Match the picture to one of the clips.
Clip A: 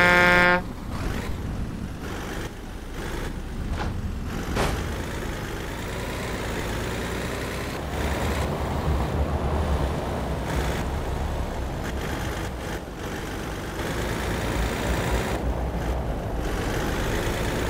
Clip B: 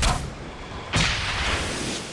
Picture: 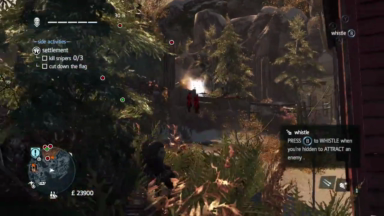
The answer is B